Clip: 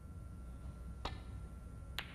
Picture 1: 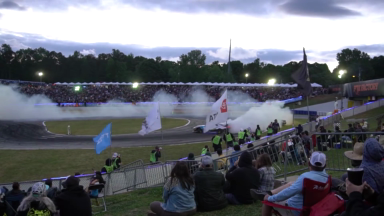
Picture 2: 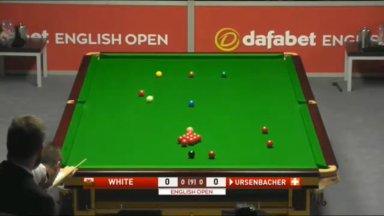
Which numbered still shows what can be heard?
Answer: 2